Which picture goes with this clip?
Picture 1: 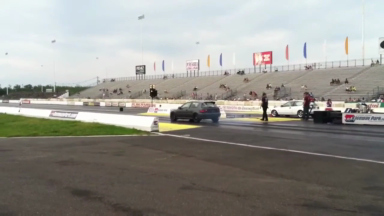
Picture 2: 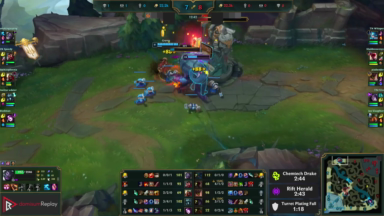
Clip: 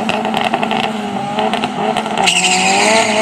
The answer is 1